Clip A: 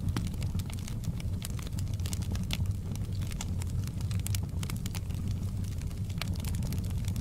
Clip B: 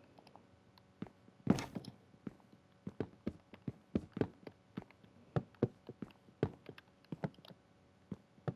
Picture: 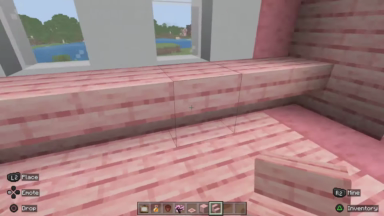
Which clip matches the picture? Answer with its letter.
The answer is B